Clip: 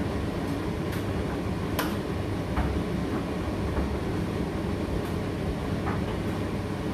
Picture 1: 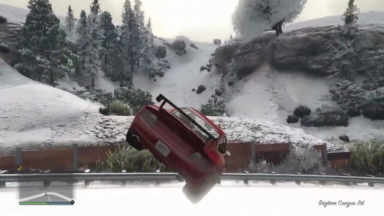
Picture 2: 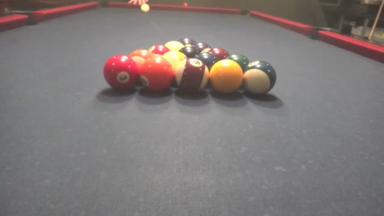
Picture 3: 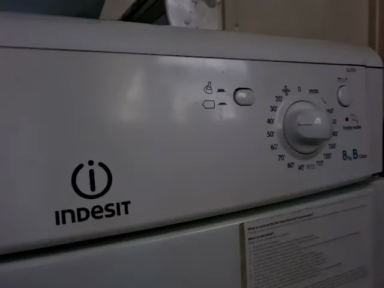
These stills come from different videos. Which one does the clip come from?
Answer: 3